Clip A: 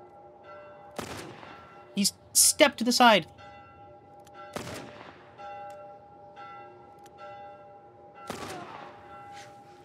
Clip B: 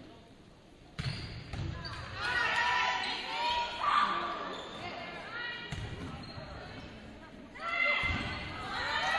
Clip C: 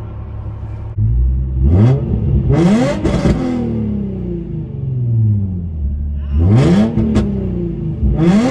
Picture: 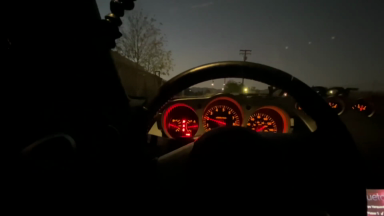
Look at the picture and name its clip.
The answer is C